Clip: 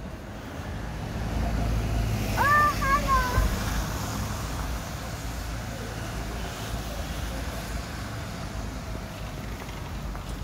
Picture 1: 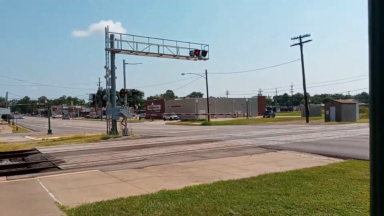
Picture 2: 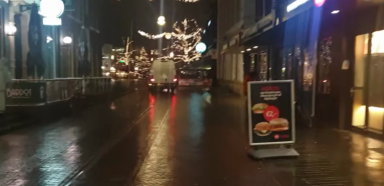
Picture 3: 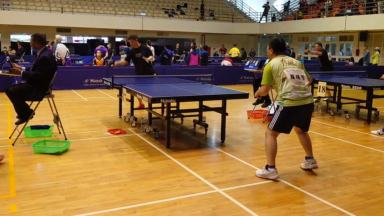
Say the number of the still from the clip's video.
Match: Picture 2